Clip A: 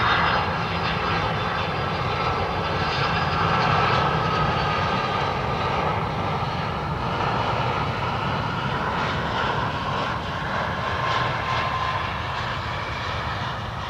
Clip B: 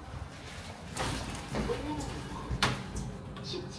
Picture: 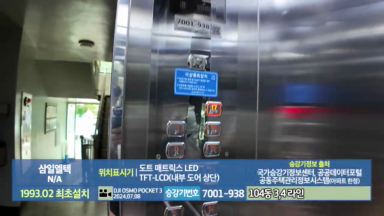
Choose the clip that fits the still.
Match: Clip B